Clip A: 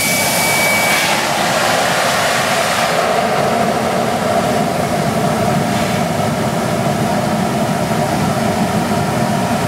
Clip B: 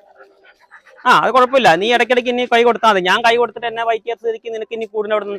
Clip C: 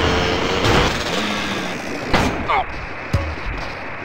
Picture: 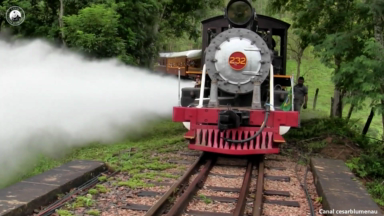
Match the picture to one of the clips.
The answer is A